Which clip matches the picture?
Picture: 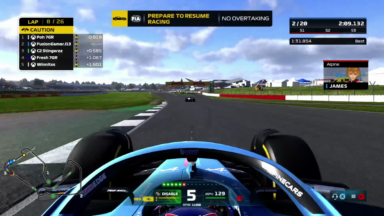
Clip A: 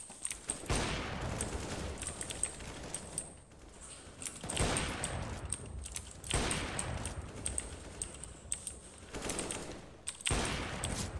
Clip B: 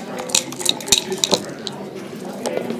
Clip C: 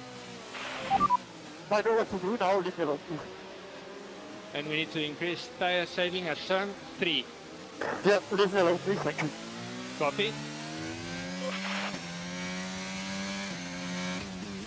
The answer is C